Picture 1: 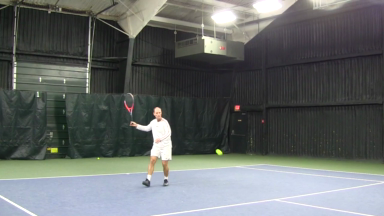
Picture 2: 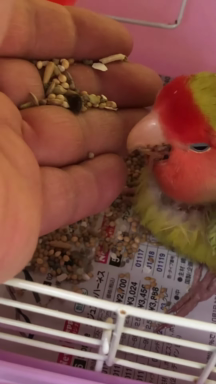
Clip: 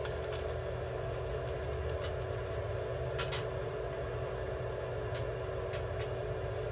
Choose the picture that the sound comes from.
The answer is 2